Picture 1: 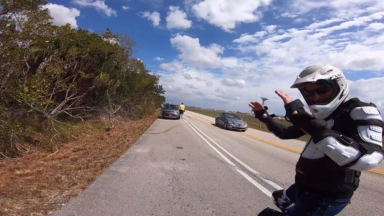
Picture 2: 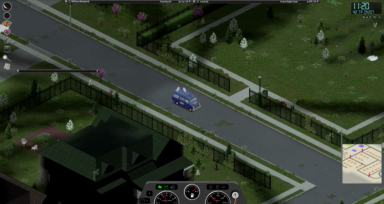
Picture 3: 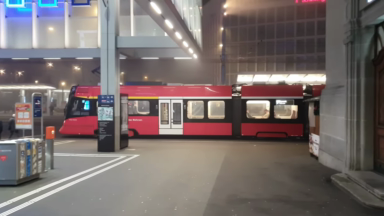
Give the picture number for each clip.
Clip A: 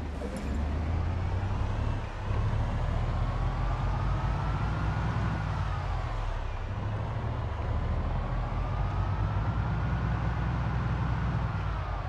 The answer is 2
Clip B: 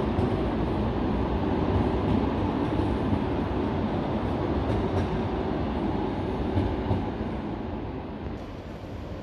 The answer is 3